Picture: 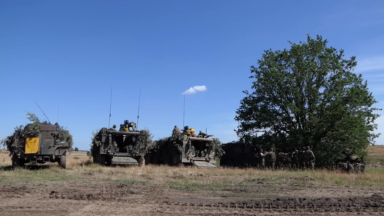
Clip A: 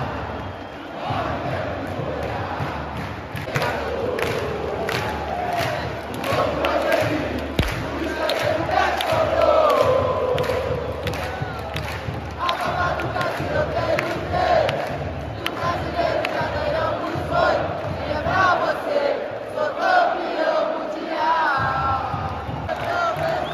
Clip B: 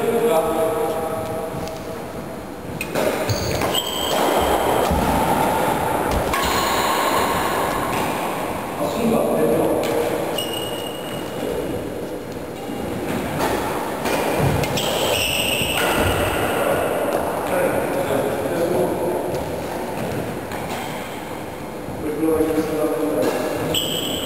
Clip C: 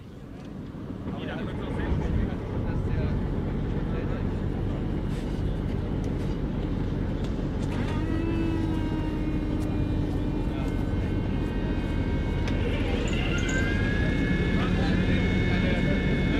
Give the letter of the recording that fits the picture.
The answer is C